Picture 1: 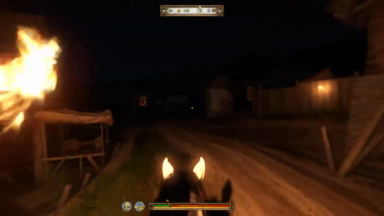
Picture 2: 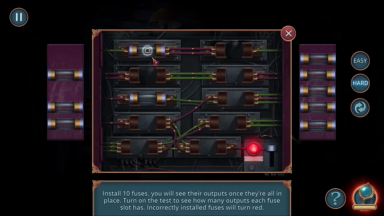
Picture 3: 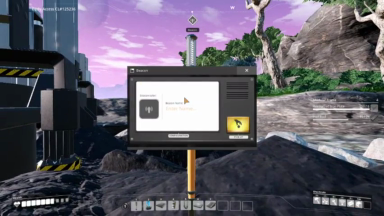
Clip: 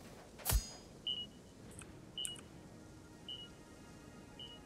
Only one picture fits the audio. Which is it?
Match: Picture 3